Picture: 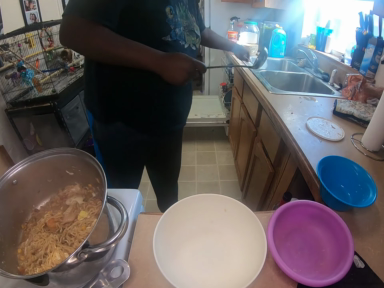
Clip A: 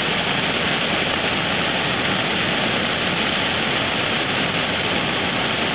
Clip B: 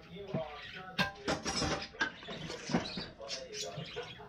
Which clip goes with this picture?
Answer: B